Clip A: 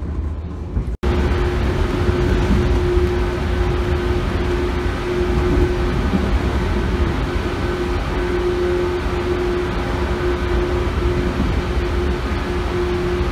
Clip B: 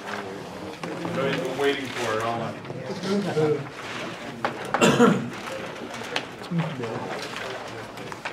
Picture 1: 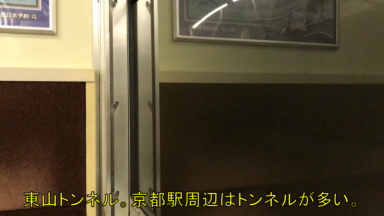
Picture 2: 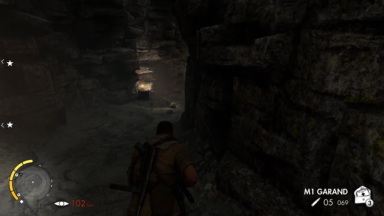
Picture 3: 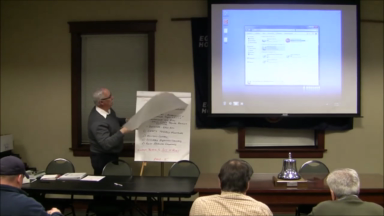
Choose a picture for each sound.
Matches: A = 1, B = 3